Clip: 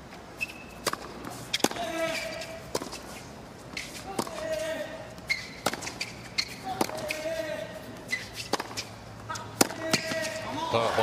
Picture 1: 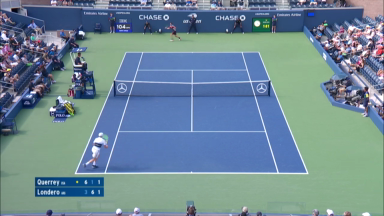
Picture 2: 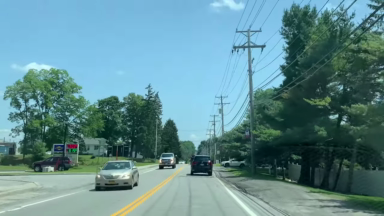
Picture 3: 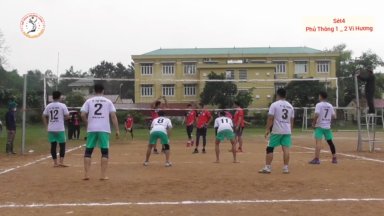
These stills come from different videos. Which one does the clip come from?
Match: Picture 1